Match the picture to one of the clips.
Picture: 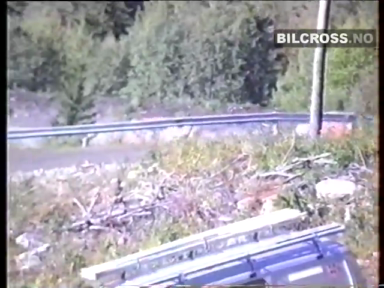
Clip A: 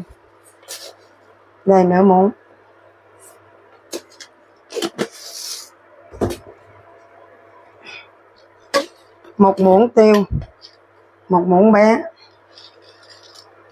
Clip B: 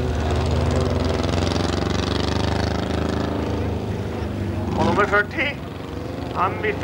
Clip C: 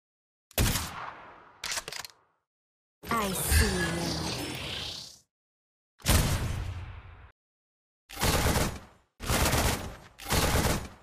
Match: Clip B